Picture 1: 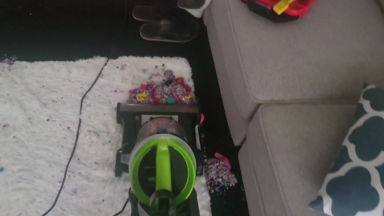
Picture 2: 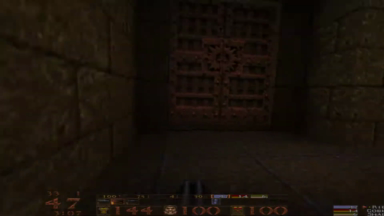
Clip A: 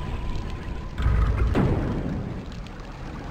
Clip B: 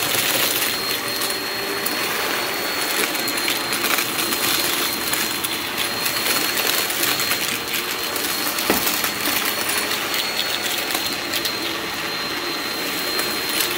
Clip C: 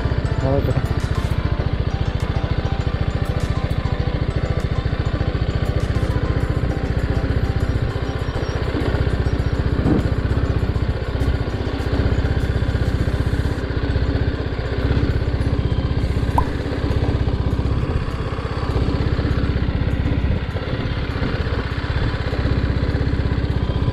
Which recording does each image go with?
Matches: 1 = B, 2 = A